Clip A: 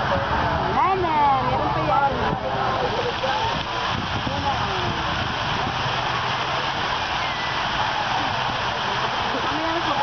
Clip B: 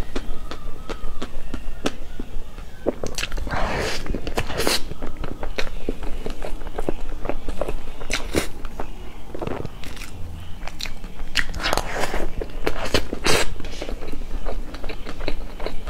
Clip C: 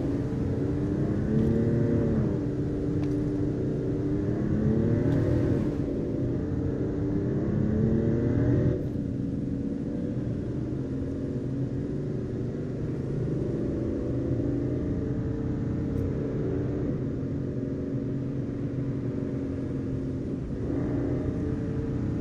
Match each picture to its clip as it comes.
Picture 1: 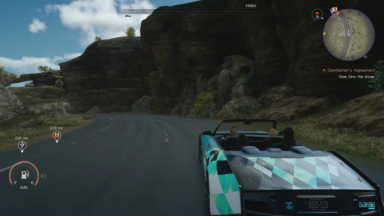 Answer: C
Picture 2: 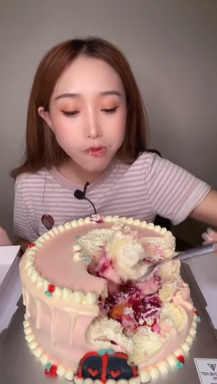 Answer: B